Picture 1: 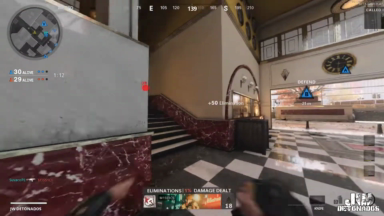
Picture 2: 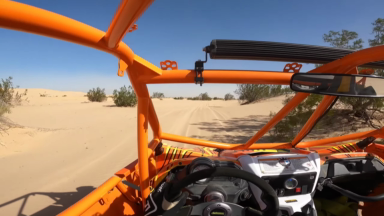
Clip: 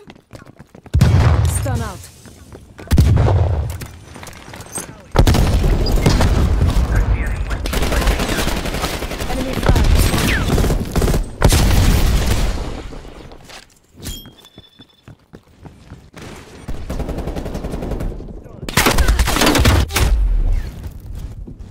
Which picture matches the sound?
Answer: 1